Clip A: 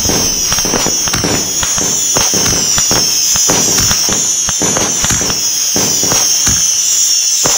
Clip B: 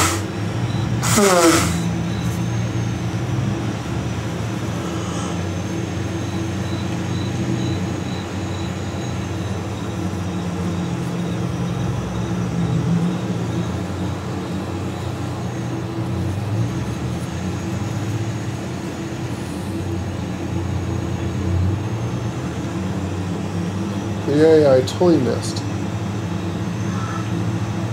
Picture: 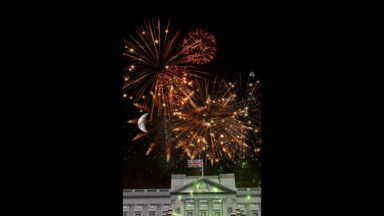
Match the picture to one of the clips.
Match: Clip A